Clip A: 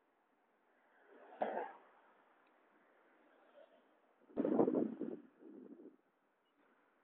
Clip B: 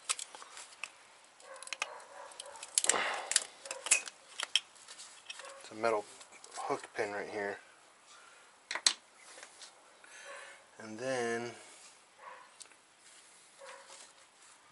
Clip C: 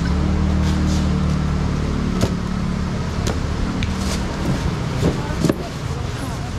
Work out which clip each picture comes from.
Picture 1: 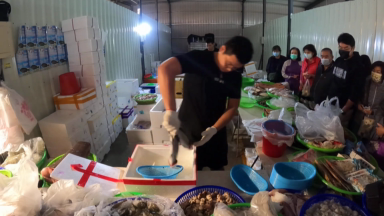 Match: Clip C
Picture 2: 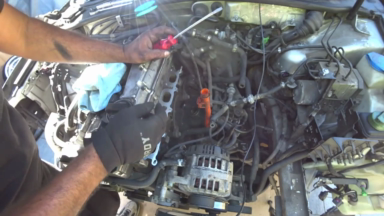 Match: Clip B